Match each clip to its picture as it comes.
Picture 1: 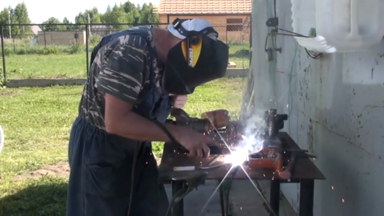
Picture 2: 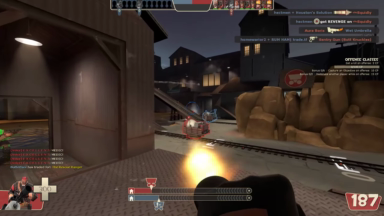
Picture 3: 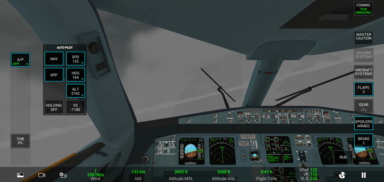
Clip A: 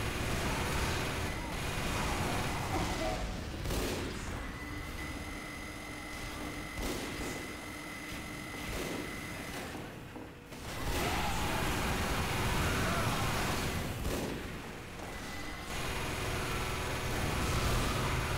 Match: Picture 2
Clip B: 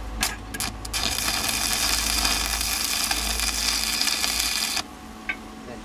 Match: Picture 1